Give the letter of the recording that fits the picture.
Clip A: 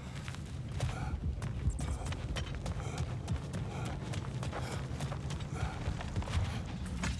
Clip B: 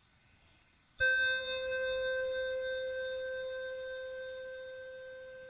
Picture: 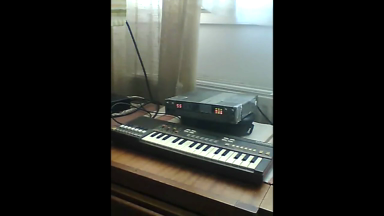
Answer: B